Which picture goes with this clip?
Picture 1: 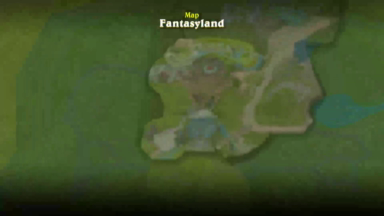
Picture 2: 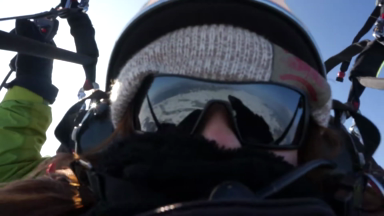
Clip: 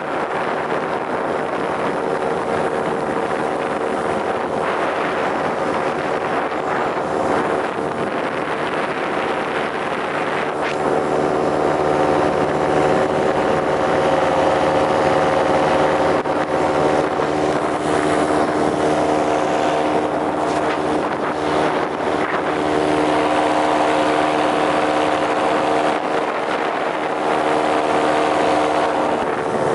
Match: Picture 2